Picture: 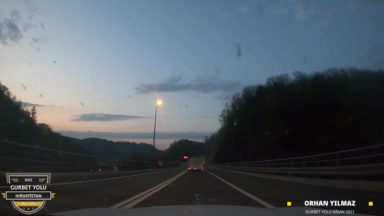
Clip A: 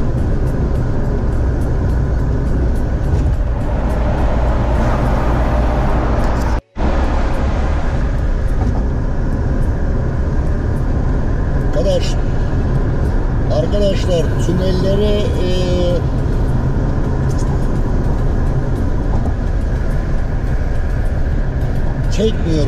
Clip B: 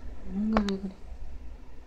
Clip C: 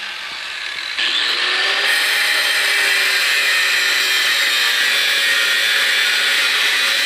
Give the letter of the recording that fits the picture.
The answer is A